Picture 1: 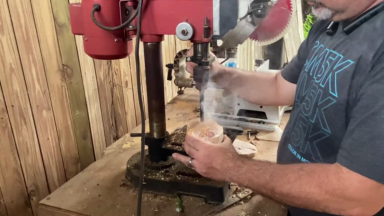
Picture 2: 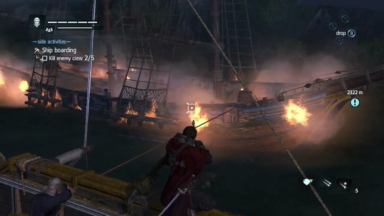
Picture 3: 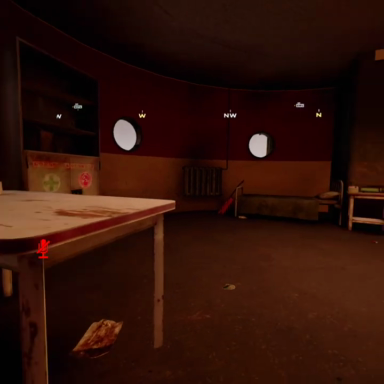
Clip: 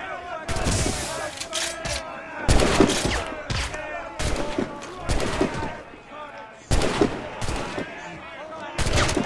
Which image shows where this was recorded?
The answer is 2